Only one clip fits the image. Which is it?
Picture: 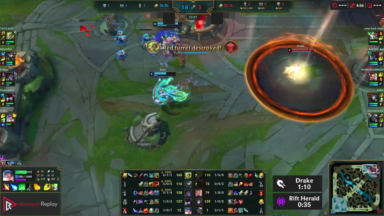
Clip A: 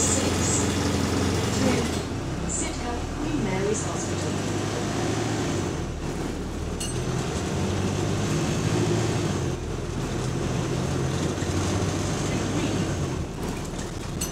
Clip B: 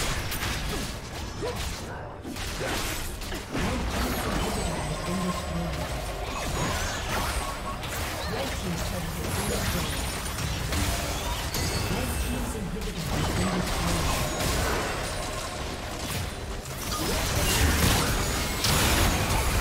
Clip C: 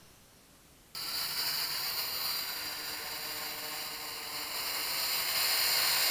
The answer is B